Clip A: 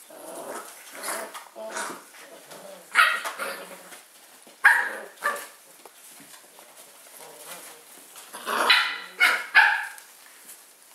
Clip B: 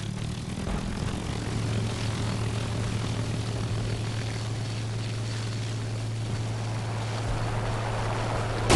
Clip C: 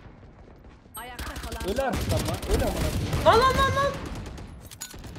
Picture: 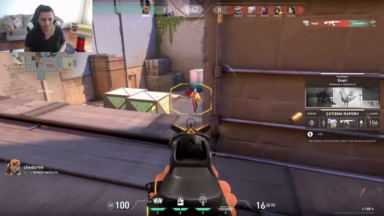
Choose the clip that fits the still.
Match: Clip C